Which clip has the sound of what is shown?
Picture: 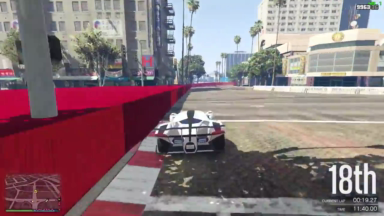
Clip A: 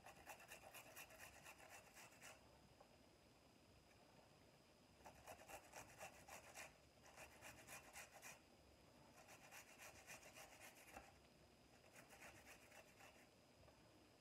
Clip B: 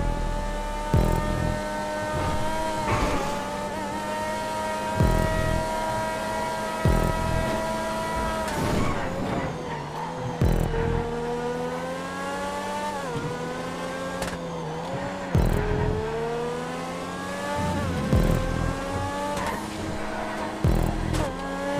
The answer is B